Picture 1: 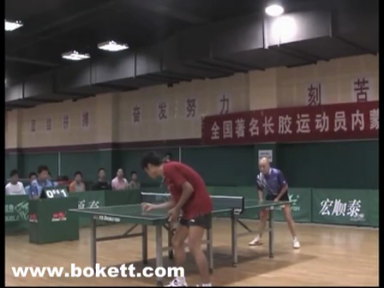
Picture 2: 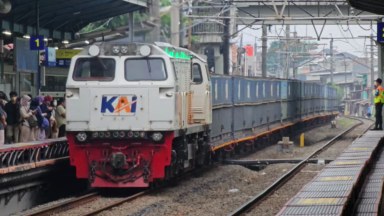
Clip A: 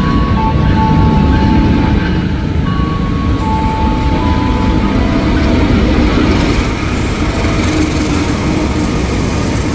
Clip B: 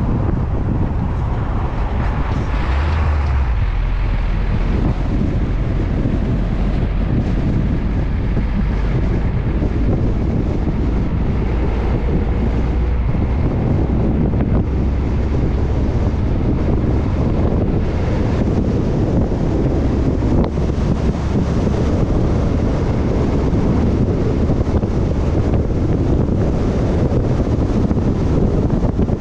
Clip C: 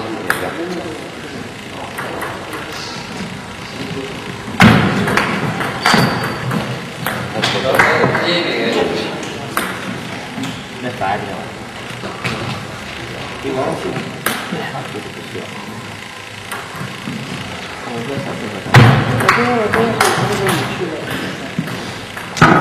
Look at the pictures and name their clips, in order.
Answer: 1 C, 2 A